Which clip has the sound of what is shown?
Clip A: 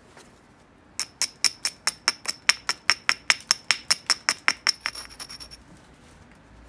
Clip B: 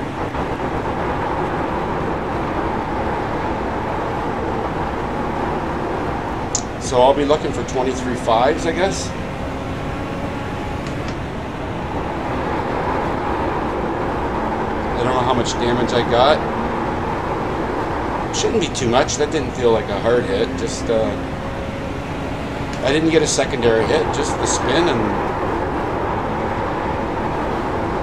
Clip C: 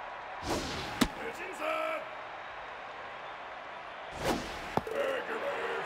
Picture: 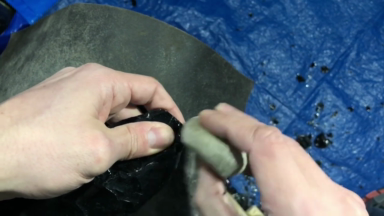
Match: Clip A